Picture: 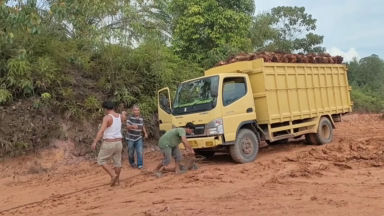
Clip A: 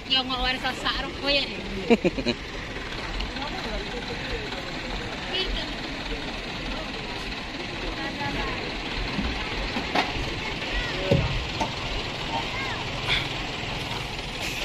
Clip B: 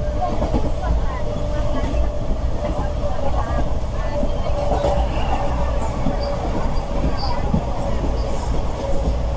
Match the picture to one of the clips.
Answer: A